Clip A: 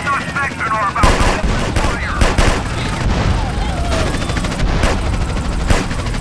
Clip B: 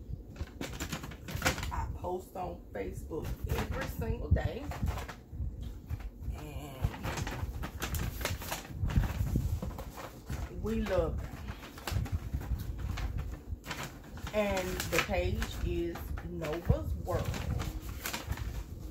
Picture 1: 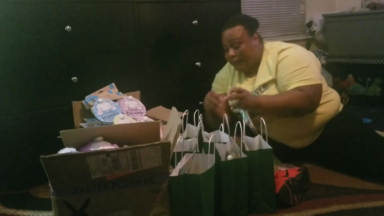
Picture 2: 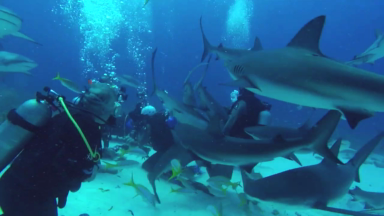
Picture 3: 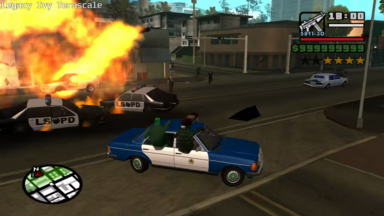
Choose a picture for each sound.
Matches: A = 3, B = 1